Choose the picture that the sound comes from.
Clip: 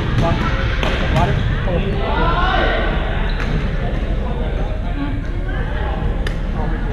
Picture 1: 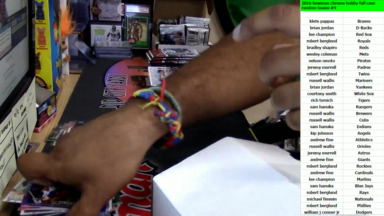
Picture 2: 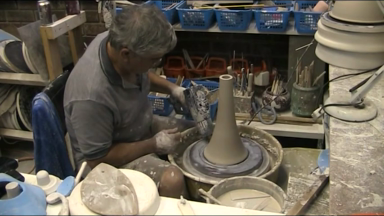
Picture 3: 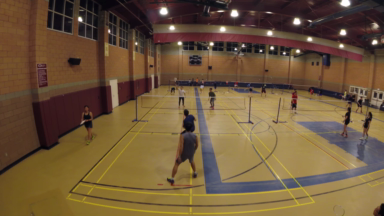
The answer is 3